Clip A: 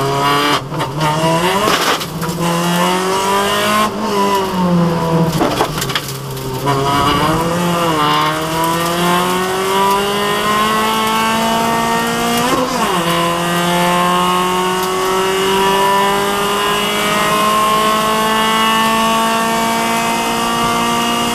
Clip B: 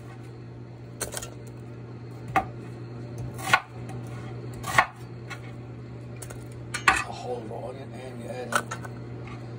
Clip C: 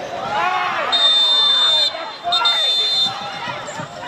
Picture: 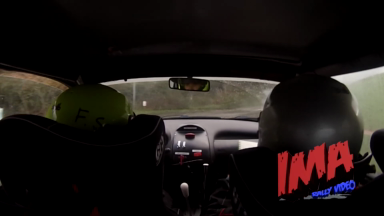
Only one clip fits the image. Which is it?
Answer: A